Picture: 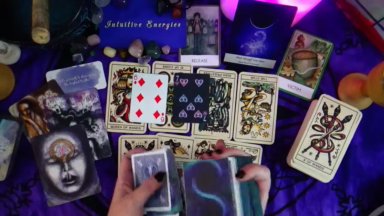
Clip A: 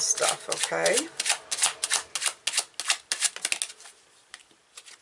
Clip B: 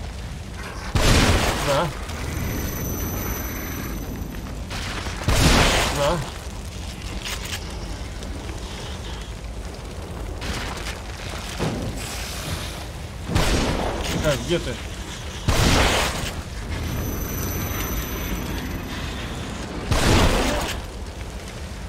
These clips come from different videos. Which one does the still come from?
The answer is A